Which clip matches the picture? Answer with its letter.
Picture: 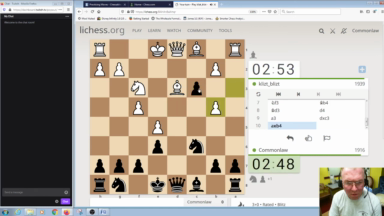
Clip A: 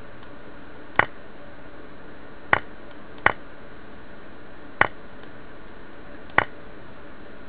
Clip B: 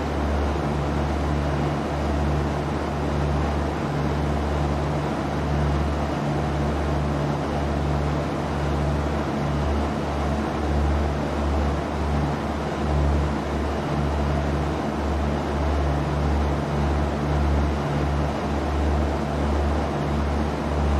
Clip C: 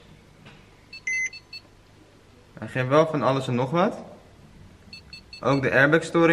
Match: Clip A